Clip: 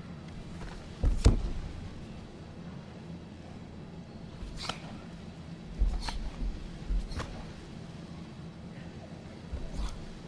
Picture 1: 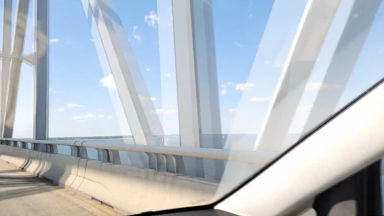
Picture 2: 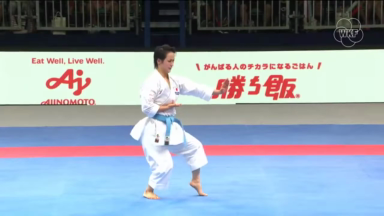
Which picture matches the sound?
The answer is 2